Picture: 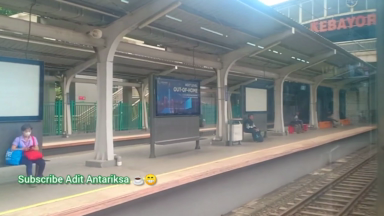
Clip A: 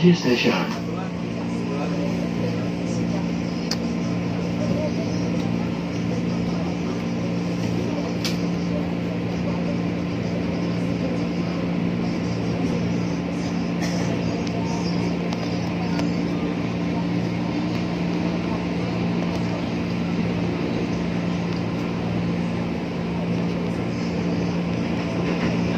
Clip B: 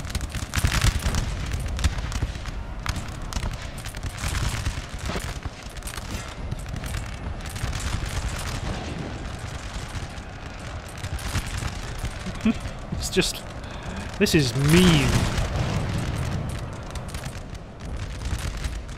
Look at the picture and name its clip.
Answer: A